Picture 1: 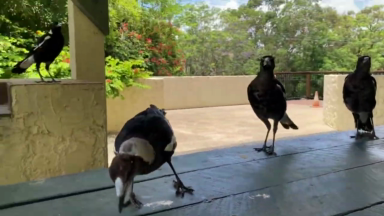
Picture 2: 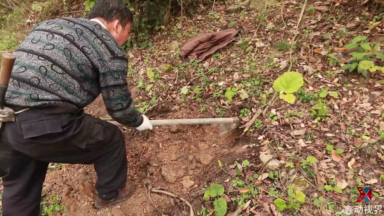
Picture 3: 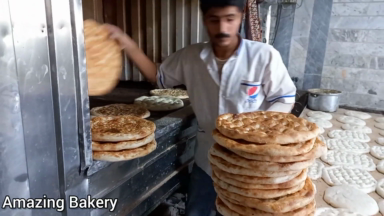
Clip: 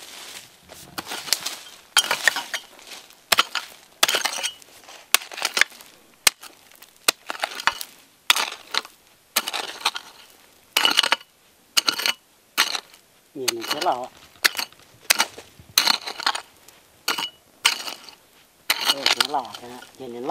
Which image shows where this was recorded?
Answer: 2